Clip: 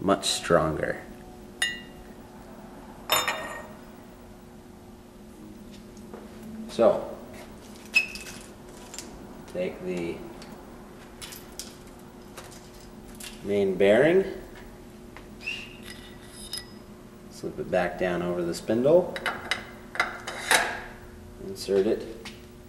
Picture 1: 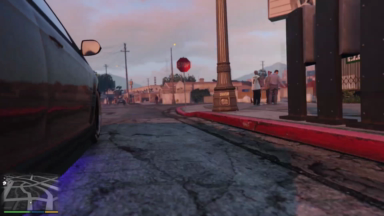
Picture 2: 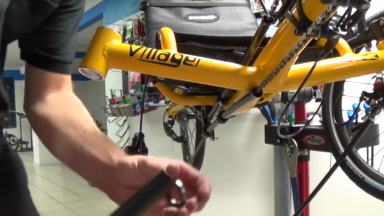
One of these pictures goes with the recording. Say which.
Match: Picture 2